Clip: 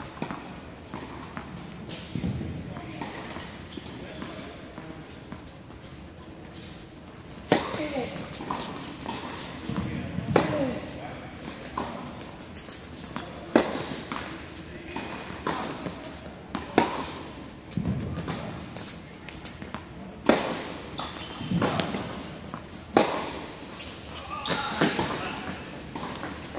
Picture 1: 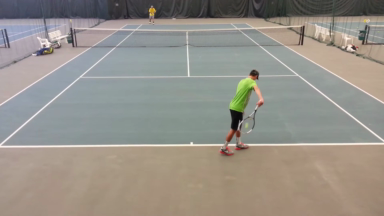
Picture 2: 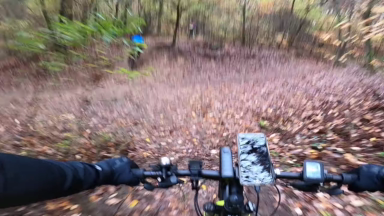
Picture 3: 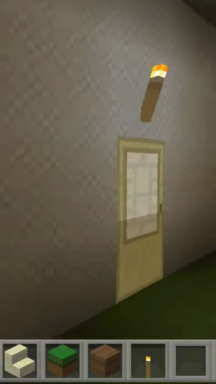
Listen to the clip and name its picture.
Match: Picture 1